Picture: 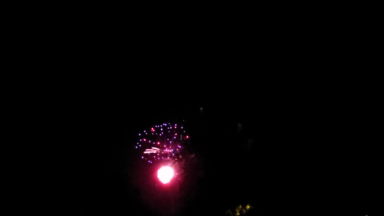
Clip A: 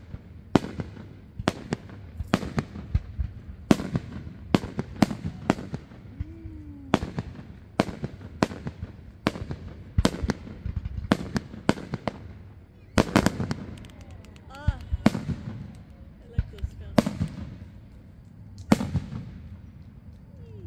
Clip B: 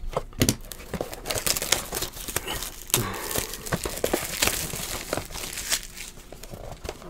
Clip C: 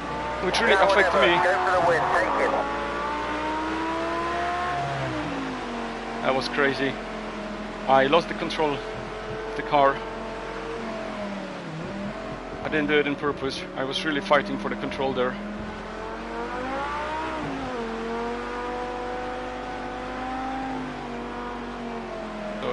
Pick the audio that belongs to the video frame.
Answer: A